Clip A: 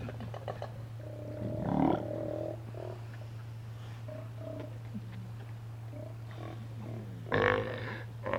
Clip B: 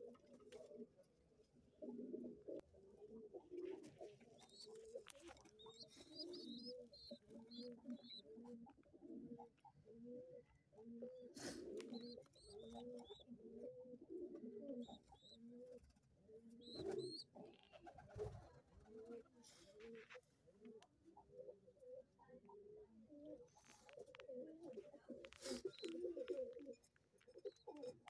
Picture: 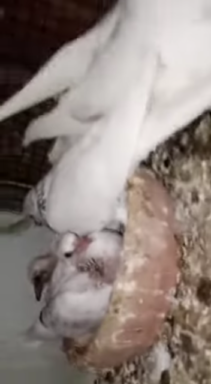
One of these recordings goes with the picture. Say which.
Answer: B